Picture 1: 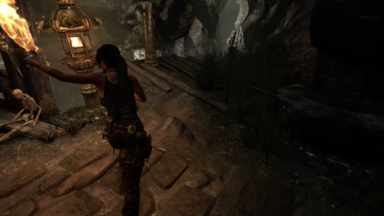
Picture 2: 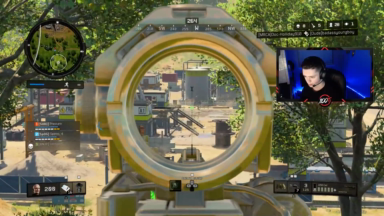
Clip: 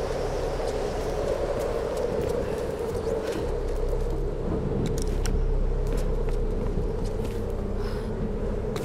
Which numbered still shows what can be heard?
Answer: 1